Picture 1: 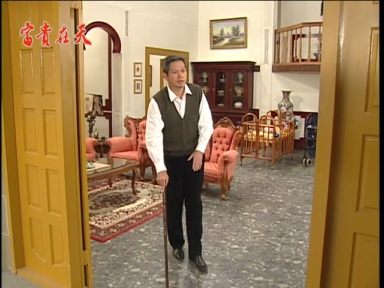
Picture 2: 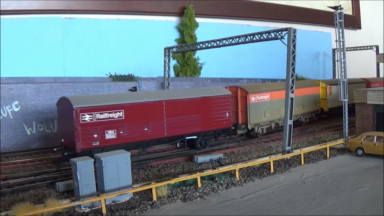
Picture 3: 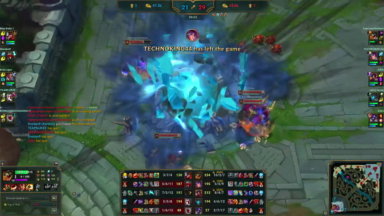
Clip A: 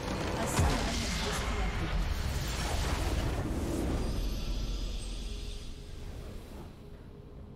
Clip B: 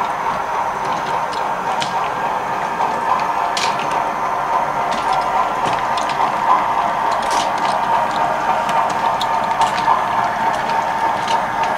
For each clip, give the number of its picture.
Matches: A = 3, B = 2